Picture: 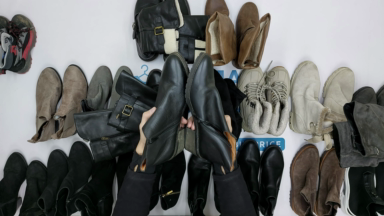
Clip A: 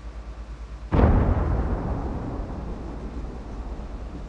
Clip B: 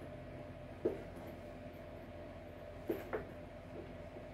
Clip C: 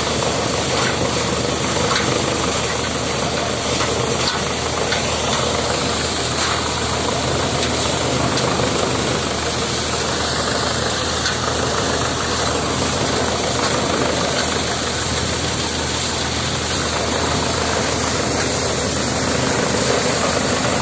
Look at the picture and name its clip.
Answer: B